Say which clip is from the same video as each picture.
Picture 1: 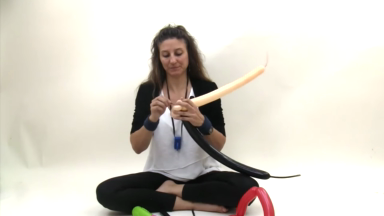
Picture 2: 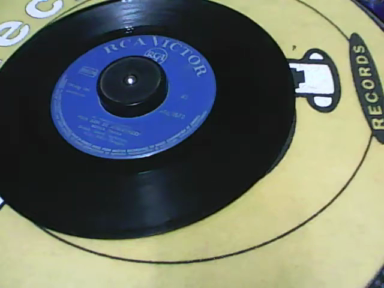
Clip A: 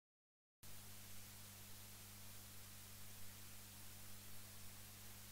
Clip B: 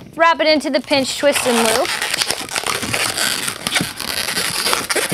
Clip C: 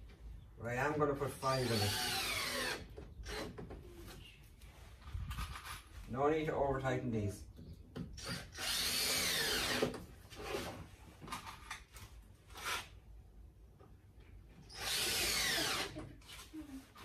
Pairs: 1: B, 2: A